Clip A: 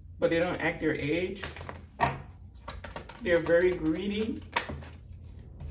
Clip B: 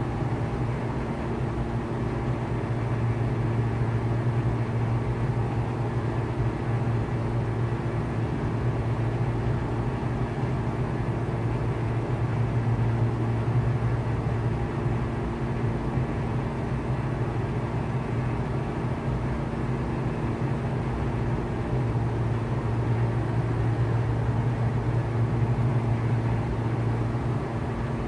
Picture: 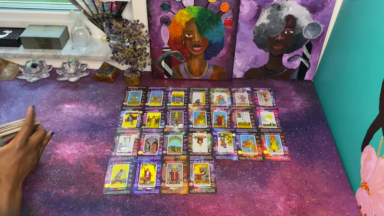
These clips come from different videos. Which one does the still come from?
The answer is A